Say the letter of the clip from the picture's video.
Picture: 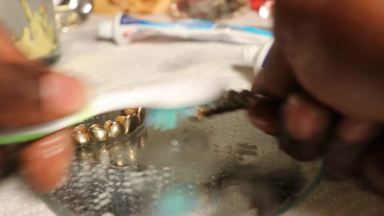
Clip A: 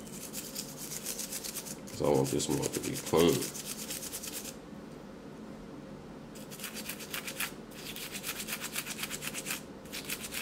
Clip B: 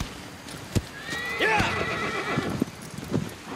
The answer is A